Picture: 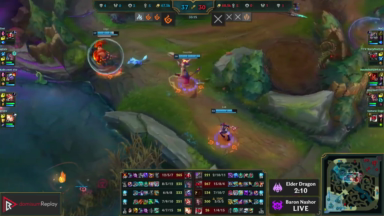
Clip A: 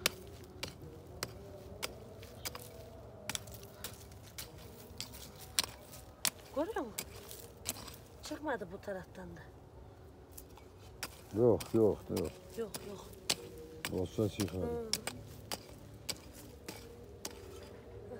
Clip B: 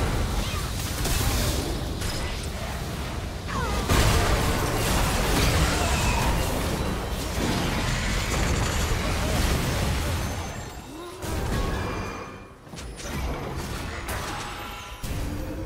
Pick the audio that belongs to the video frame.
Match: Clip B